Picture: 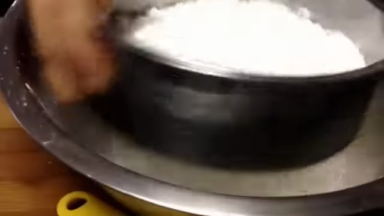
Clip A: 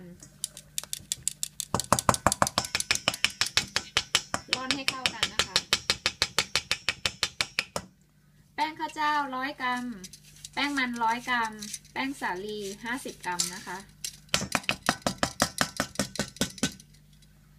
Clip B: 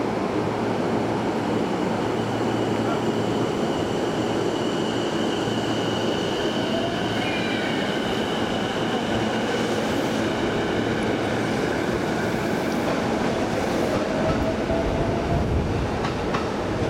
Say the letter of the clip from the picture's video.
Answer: A